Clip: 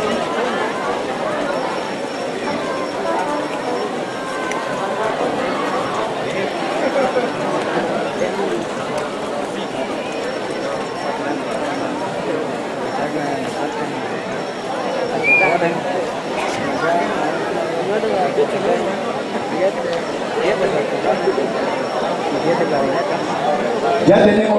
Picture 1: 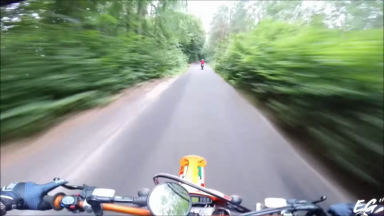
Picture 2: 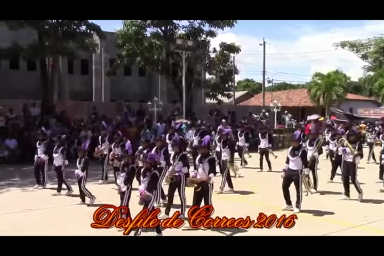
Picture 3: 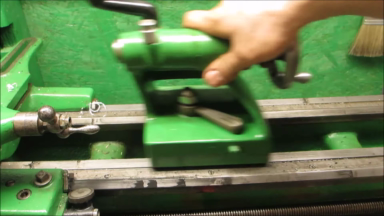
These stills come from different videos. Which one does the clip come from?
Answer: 2